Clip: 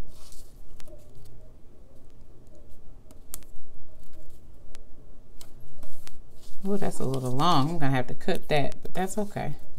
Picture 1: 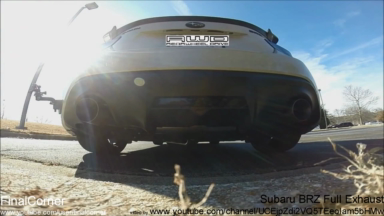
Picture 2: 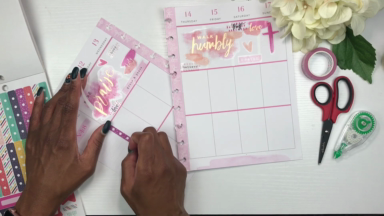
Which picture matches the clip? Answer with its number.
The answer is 2